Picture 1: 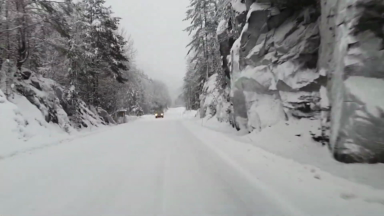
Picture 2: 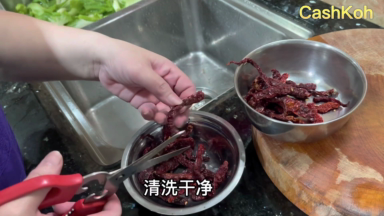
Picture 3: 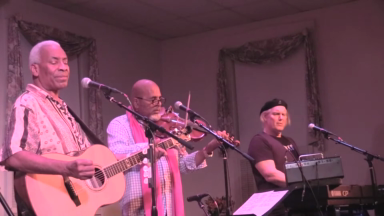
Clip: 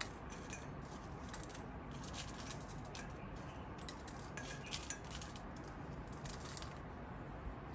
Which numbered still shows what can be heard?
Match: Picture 2